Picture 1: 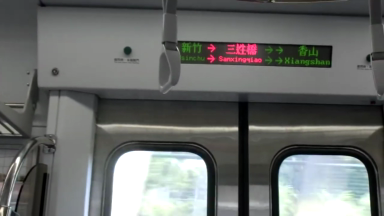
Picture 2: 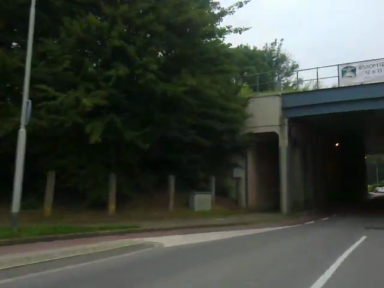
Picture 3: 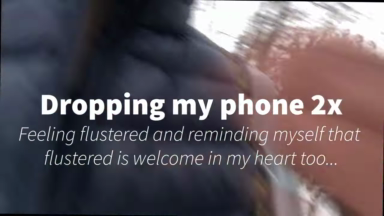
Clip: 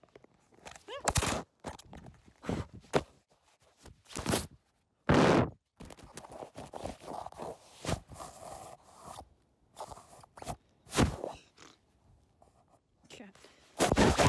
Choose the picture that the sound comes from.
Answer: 3